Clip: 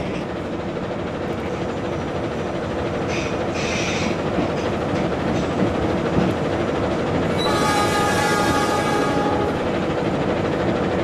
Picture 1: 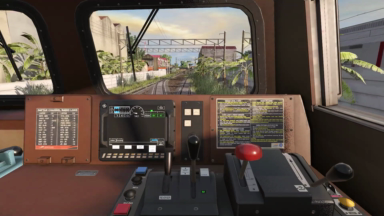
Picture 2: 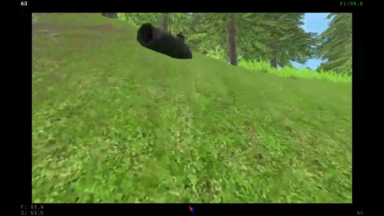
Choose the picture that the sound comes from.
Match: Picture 1